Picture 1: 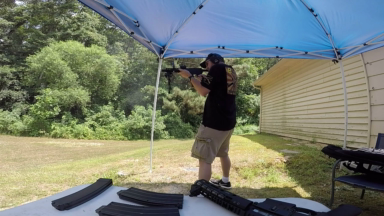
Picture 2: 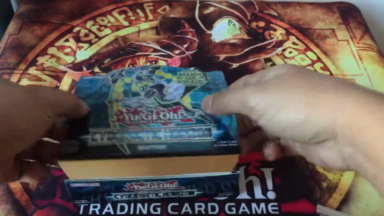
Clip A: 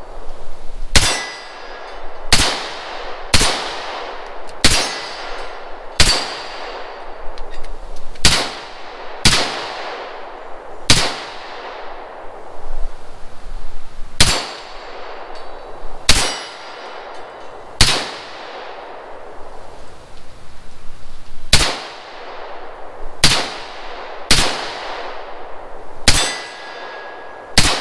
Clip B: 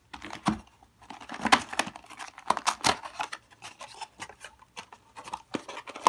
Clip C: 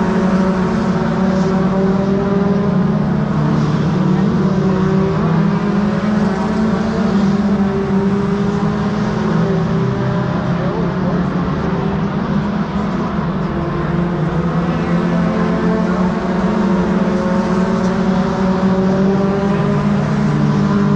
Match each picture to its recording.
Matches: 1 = A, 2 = B